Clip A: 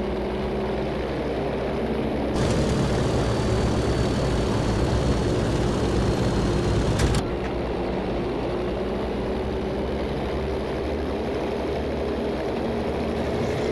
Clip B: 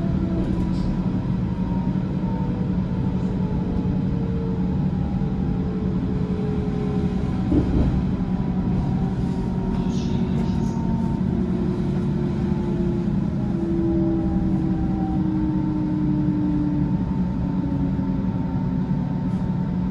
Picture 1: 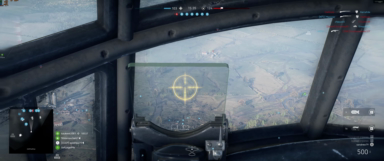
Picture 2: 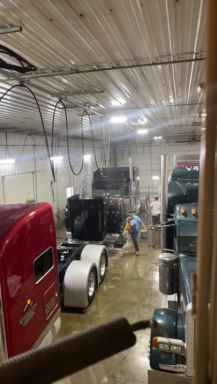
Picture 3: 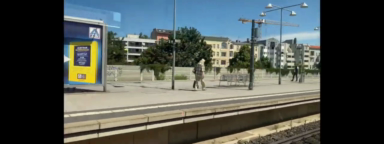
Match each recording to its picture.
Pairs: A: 1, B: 3